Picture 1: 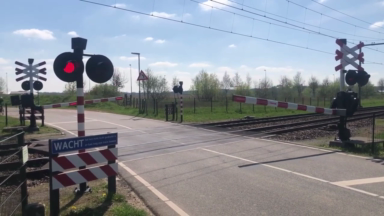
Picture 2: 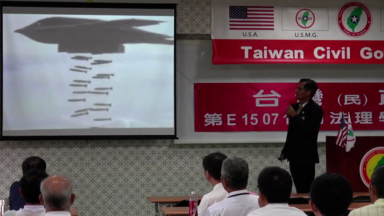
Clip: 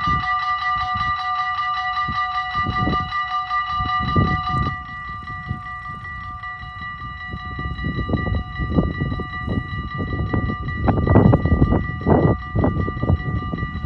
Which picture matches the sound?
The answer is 1